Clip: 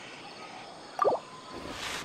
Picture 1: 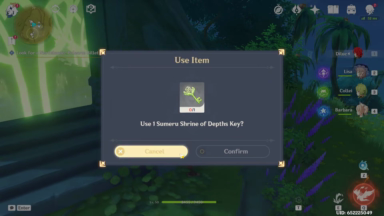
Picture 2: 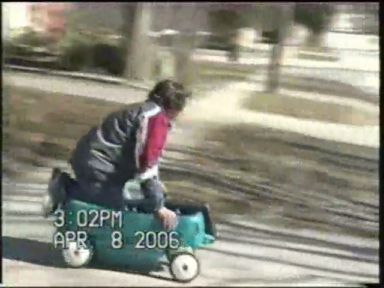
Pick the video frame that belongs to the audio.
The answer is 1